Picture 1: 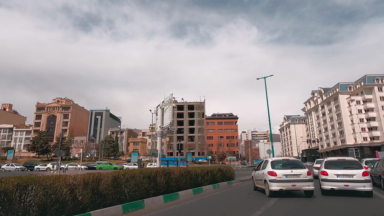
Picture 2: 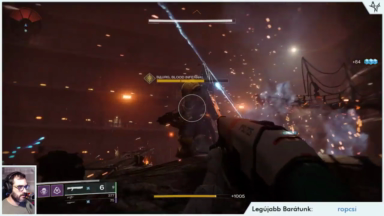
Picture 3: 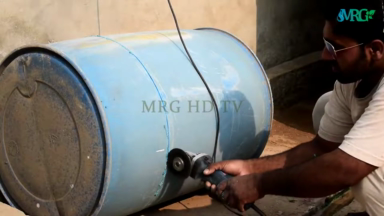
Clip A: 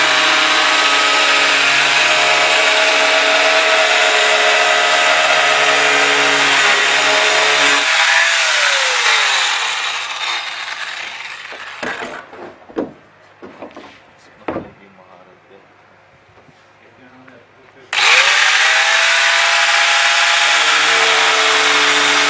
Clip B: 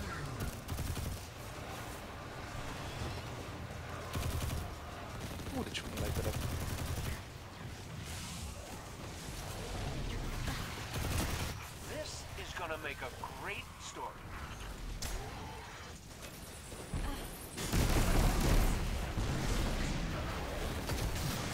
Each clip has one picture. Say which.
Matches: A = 3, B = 2